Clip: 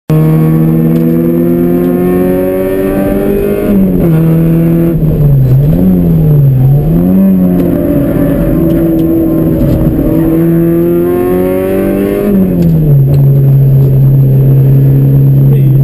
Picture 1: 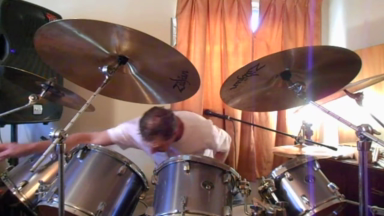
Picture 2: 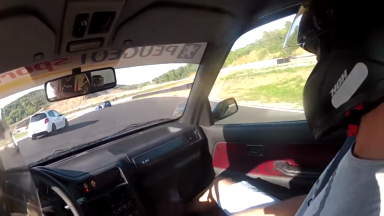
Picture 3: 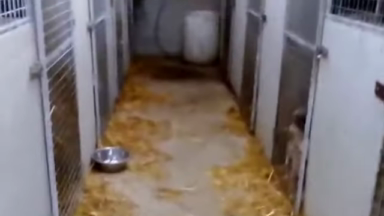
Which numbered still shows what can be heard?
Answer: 2